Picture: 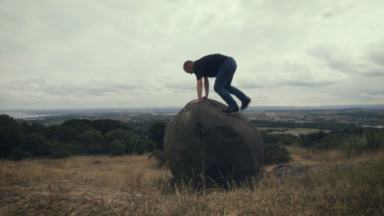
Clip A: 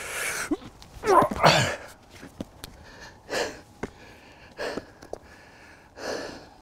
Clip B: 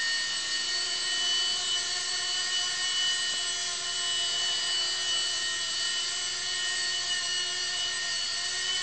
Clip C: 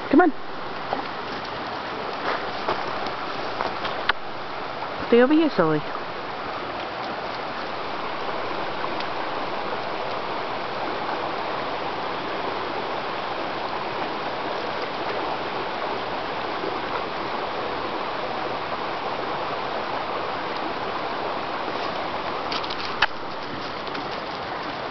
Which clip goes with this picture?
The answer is A